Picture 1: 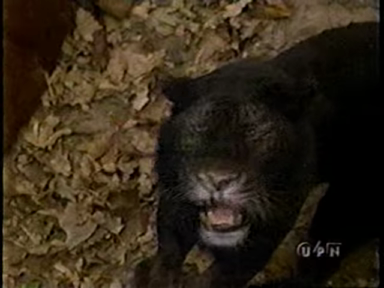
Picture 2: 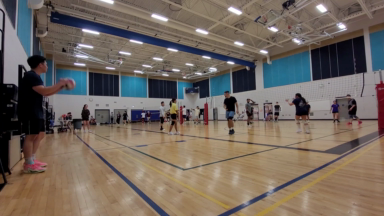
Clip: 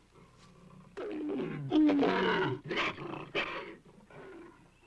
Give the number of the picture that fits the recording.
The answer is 1